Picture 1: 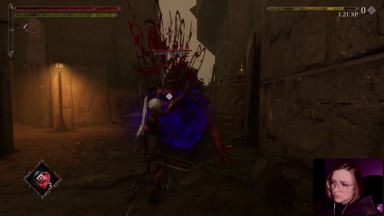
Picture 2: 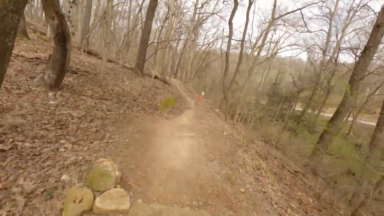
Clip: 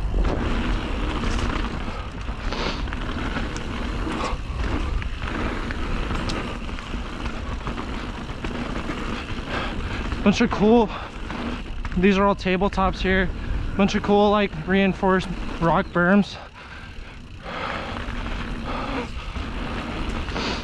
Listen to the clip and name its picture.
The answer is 2